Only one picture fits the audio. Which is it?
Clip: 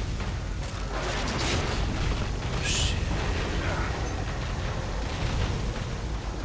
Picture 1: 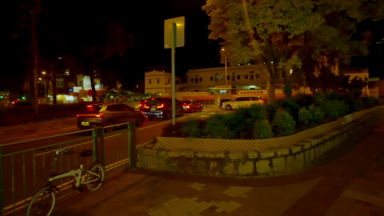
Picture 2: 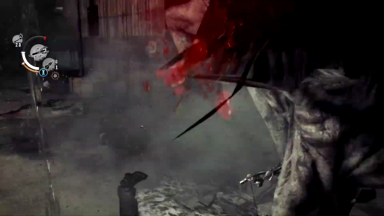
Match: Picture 2